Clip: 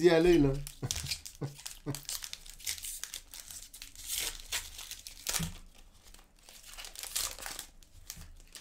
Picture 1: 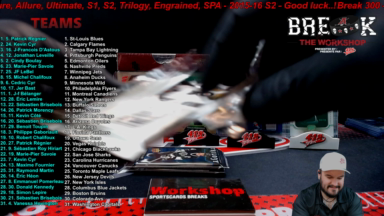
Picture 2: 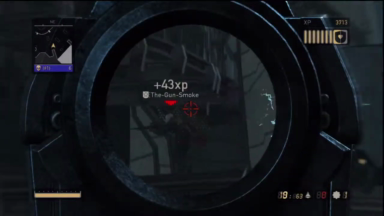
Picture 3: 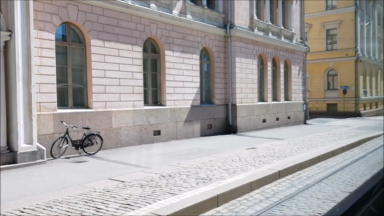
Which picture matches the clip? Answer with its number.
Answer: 1